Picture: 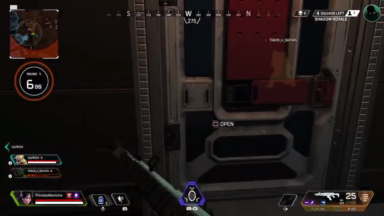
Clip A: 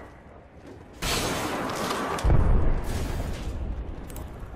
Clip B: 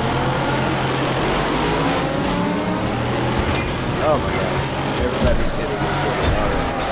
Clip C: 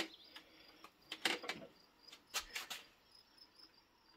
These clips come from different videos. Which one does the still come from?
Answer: A